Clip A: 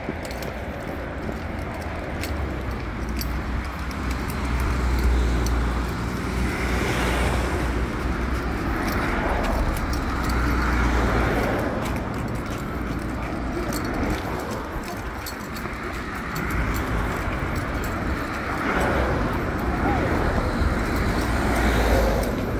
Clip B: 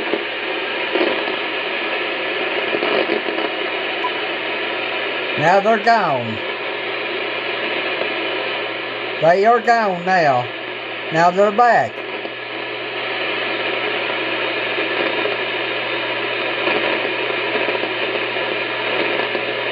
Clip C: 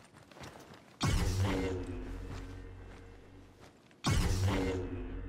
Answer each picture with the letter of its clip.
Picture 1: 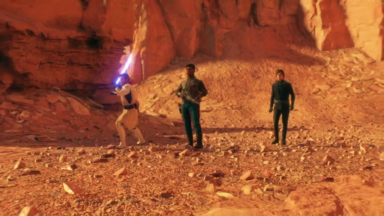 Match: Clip C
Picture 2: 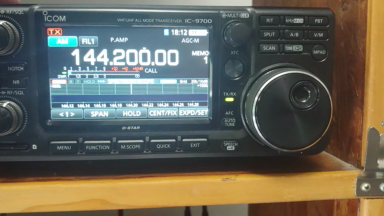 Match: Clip B